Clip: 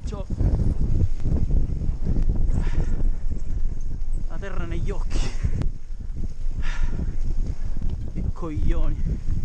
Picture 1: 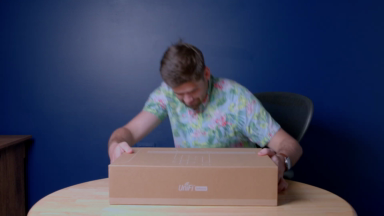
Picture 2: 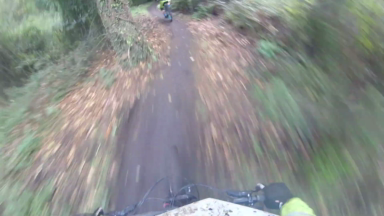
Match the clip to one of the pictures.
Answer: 2